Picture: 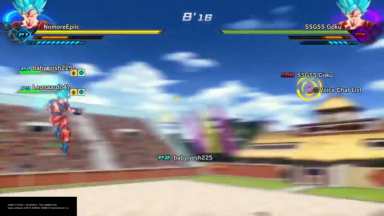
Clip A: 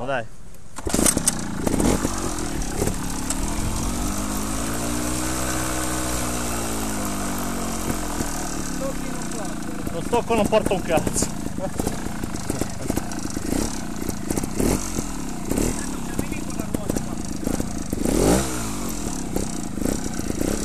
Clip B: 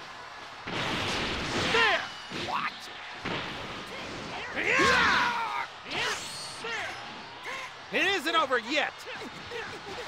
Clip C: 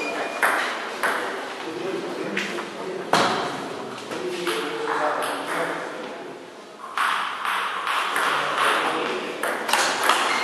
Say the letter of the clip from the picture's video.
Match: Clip B